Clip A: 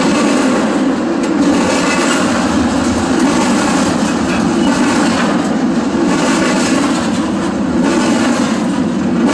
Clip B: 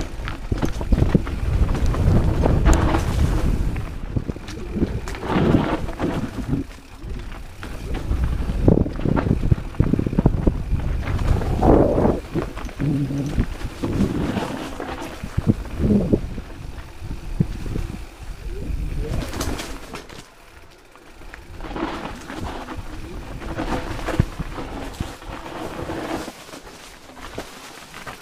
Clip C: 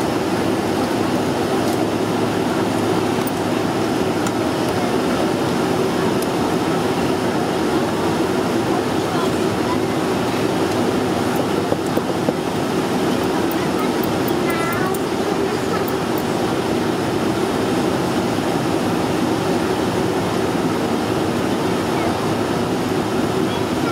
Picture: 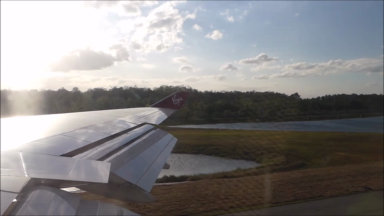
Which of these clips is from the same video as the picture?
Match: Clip C